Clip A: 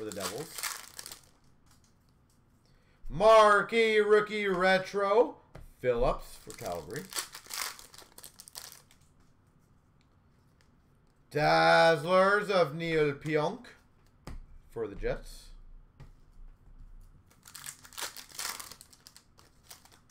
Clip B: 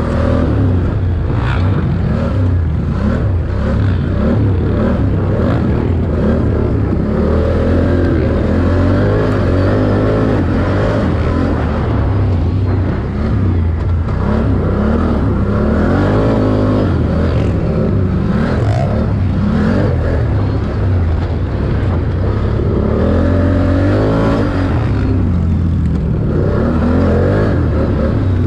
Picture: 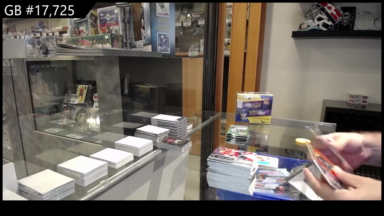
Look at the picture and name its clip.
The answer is A